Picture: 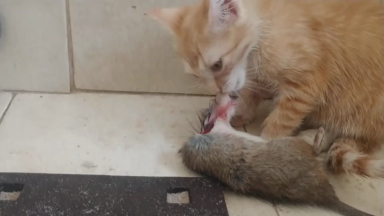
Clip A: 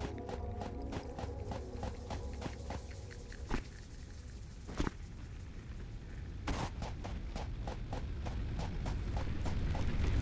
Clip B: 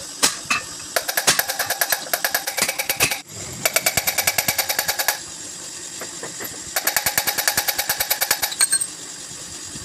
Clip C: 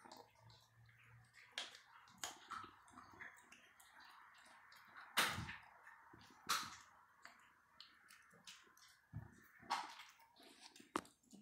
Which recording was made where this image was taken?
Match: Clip C